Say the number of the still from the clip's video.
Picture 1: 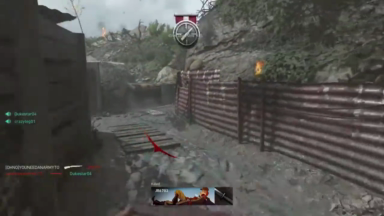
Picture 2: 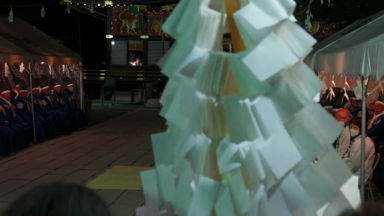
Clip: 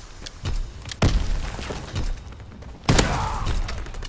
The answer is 1